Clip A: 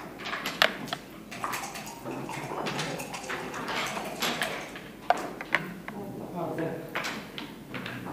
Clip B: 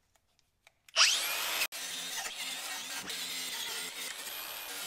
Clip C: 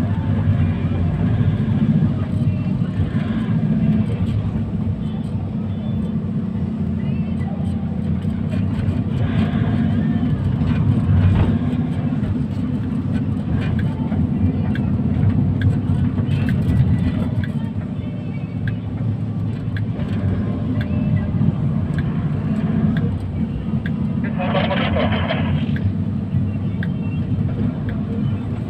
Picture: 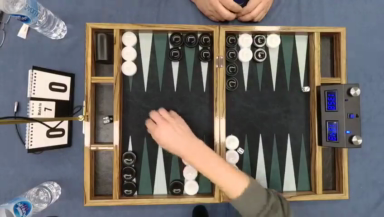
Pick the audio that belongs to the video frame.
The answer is A